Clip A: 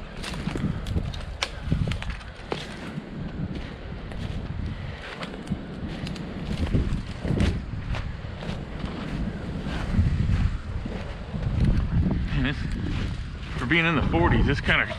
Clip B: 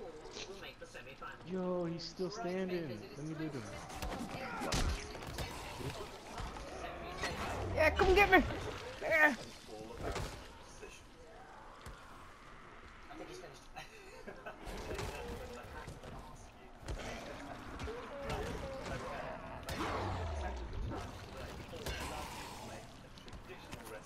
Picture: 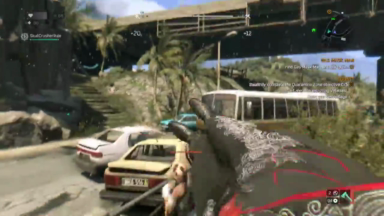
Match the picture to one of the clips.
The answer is B